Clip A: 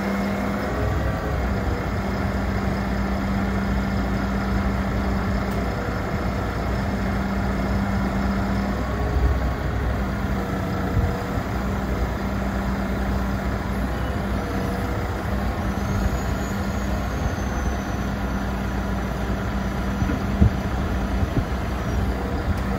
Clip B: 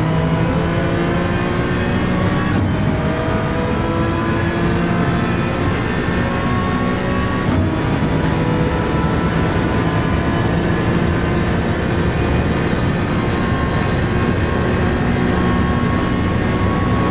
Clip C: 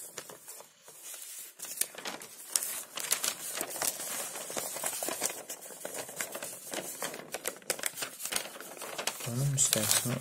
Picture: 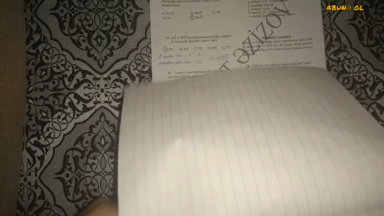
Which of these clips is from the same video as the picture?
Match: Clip C